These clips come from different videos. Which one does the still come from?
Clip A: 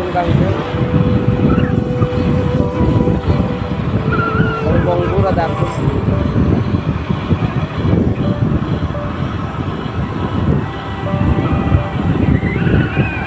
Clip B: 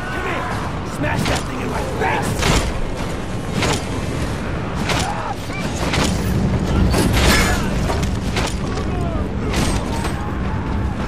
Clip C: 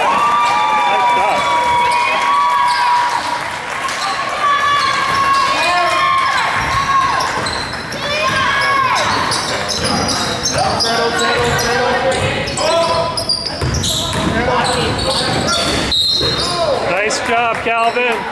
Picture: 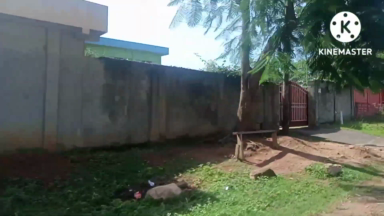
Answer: A